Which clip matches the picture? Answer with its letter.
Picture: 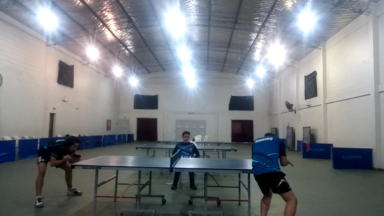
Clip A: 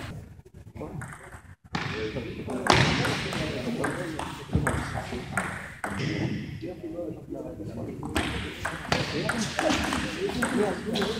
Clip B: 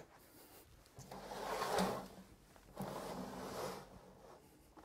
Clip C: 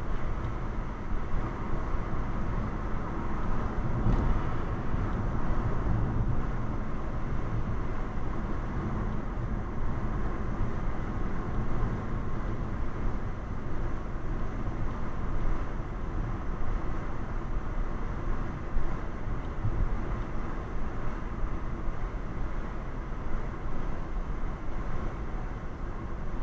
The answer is A